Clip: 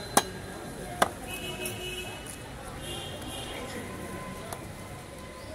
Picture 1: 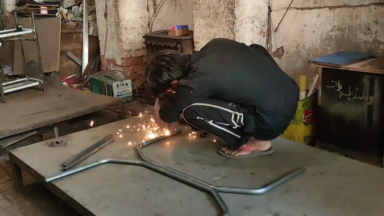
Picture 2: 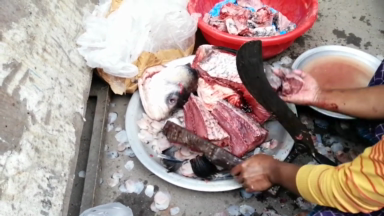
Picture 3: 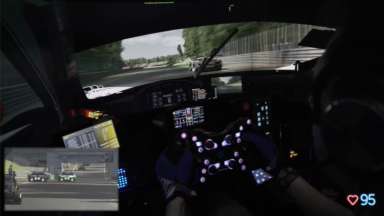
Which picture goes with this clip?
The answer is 2